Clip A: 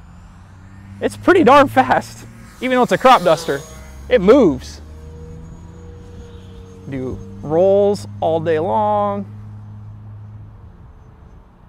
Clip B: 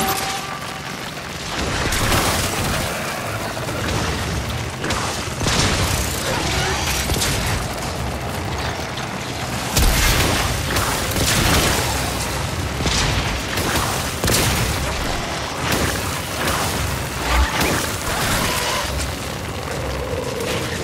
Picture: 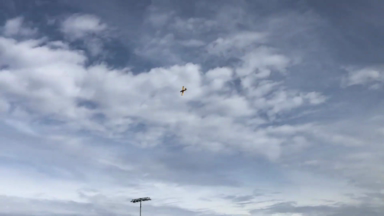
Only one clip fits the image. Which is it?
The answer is A